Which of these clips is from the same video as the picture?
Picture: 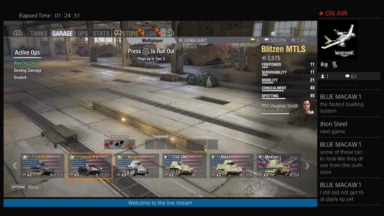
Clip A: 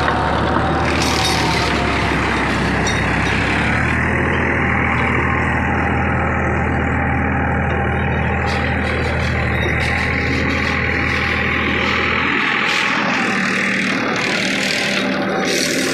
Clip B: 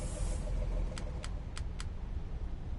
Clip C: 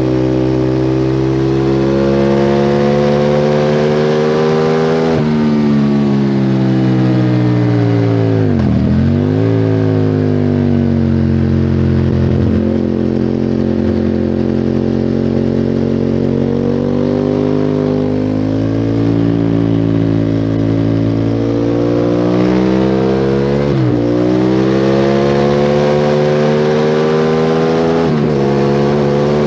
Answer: B